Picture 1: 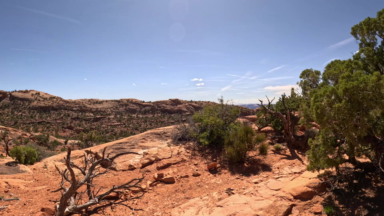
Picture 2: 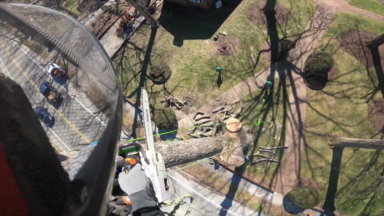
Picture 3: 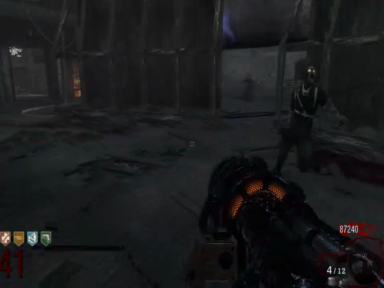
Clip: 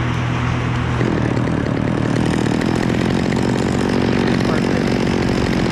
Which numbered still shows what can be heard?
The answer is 2